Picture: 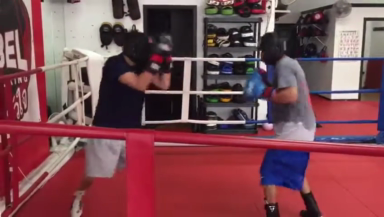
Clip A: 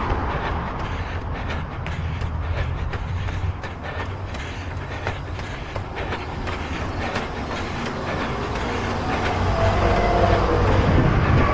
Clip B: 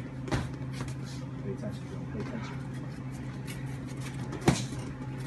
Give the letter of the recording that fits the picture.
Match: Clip B